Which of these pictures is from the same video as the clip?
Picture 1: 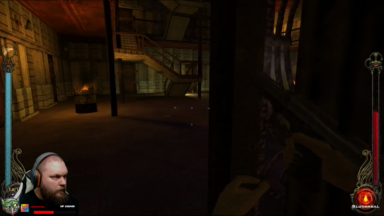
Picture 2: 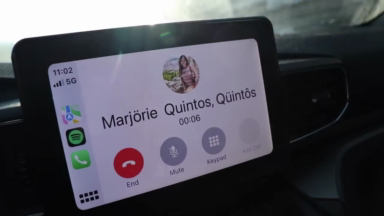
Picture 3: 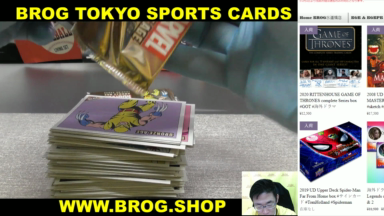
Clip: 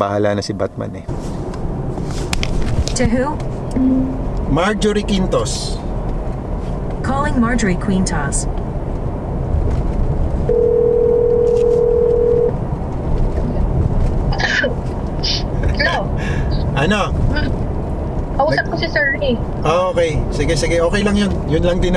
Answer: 2